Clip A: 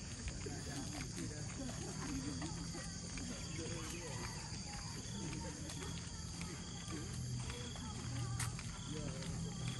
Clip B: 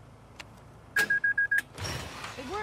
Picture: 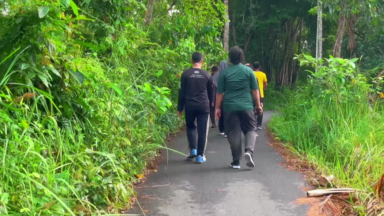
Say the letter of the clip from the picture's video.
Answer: A